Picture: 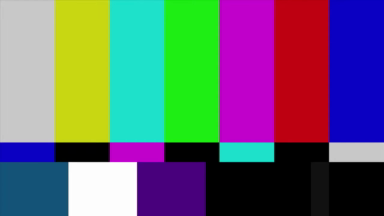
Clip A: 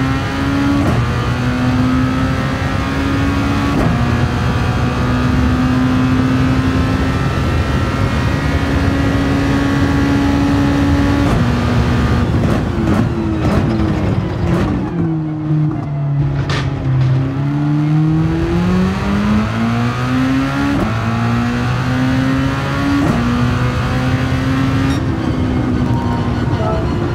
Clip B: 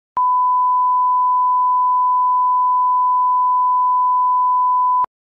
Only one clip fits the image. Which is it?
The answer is B